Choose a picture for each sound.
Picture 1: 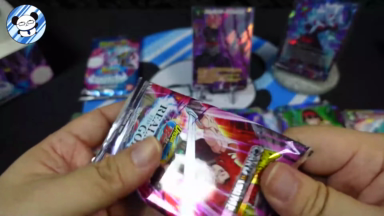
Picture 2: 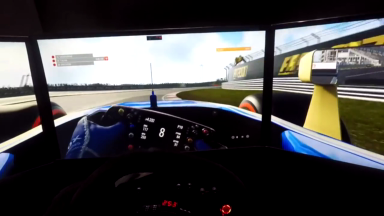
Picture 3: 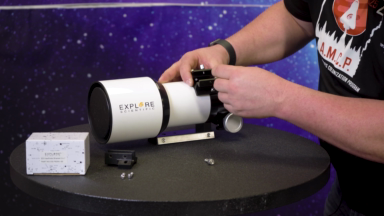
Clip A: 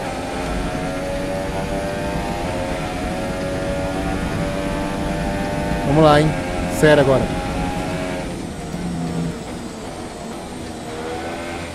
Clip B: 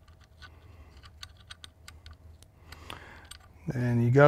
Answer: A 2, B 3